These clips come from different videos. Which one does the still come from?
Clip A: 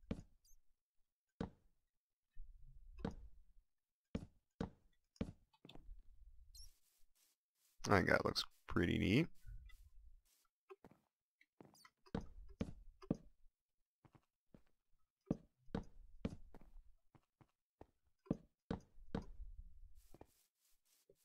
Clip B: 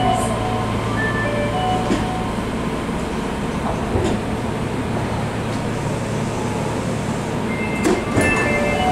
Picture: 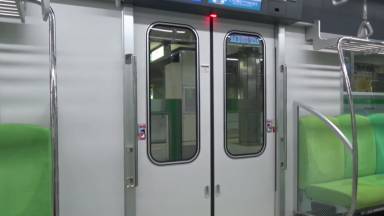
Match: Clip B